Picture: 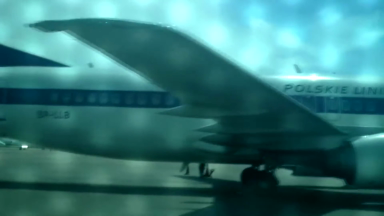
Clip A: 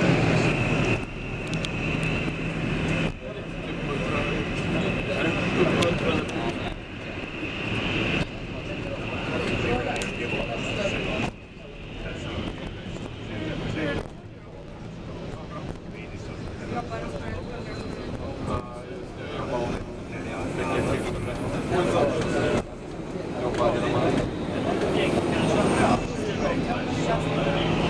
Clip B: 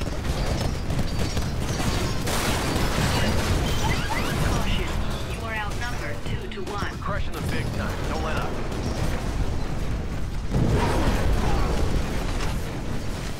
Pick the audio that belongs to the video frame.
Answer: A